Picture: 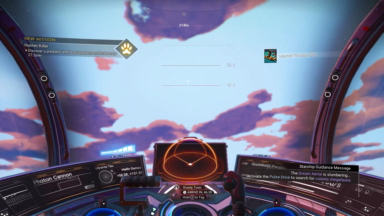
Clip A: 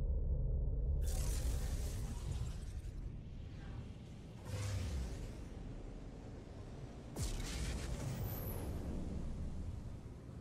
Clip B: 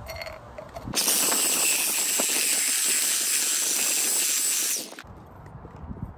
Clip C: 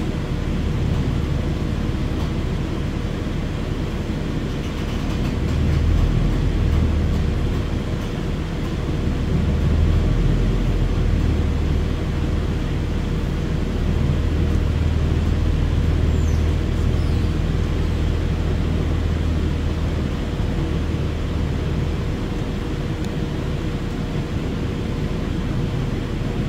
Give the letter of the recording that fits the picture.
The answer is A